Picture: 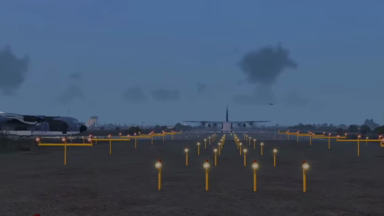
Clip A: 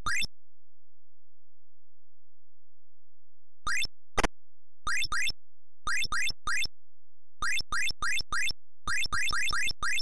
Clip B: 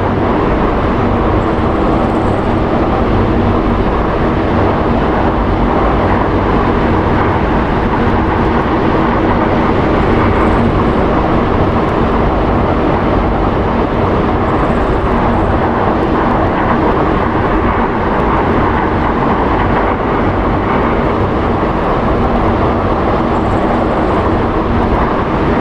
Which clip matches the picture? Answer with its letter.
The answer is B